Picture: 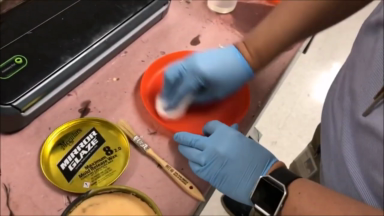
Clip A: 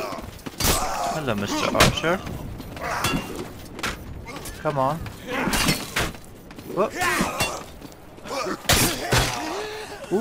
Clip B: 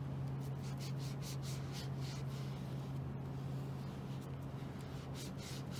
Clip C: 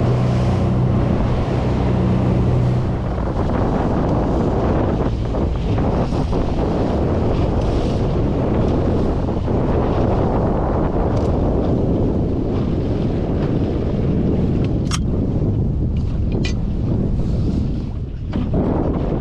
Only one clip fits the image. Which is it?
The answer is B